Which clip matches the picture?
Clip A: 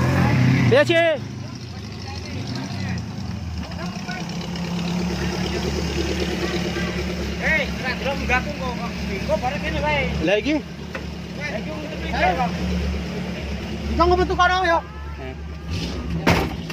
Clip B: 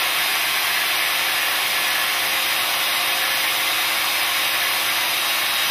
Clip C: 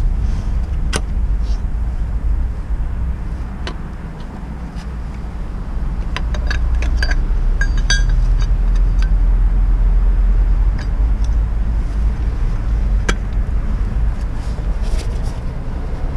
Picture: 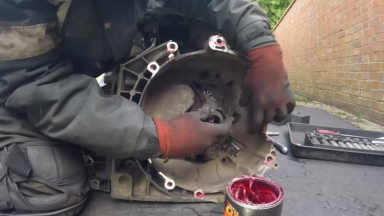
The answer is C